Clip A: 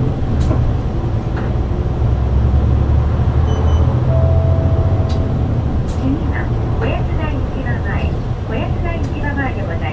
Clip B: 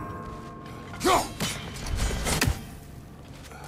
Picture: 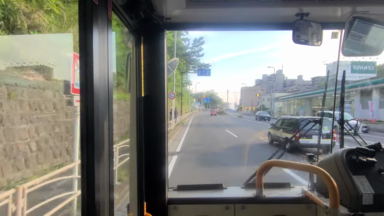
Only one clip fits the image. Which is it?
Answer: A